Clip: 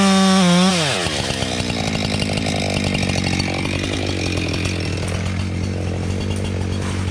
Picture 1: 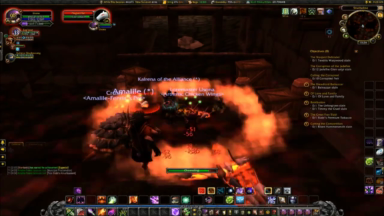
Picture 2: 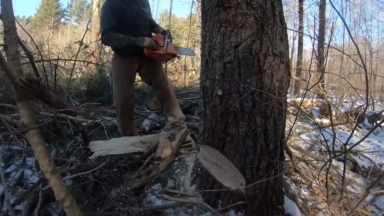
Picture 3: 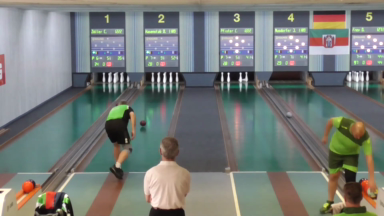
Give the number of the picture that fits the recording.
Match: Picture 2